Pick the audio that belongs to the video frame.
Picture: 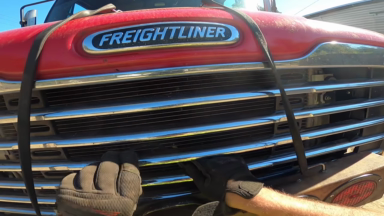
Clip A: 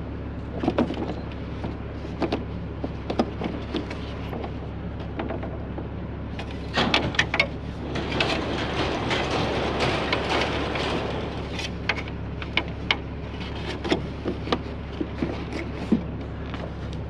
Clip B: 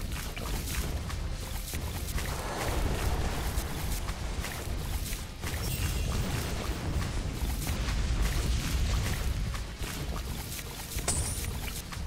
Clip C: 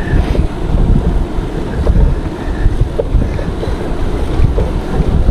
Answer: A